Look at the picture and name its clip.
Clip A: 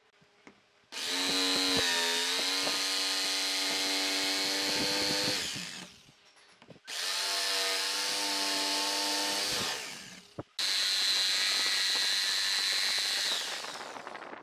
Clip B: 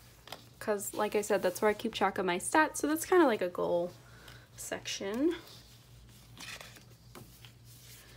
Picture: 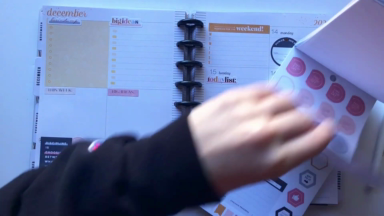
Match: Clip B